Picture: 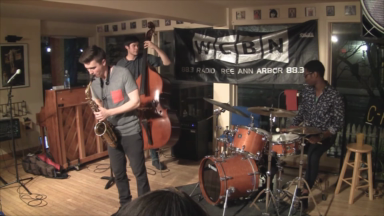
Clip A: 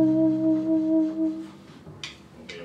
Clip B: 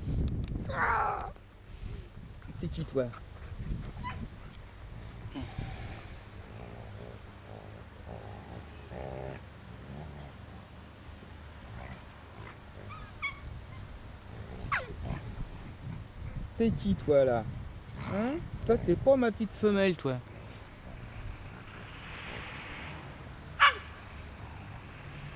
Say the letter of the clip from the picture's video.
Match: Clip A